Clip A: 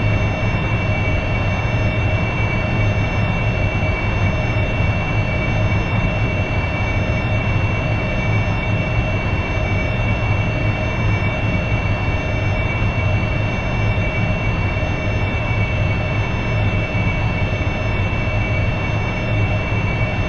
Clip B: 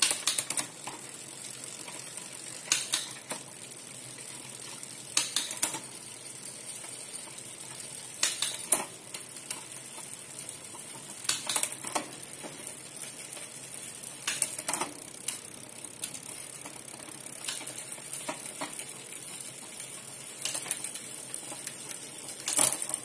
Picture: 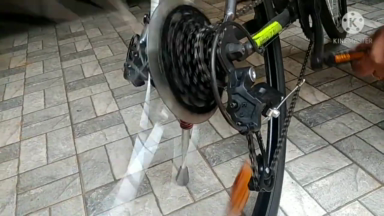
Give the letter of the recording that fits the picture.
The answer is B